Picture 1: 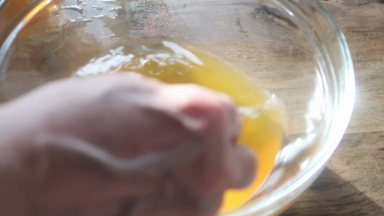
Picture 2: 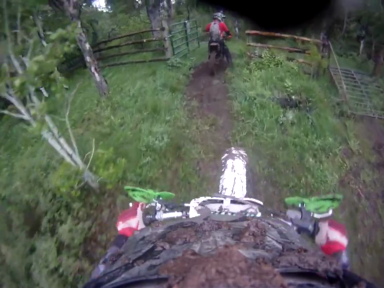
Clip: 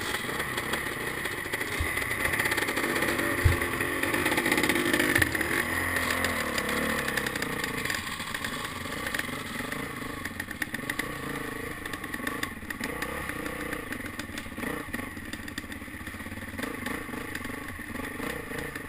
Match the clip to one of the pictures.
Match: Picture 2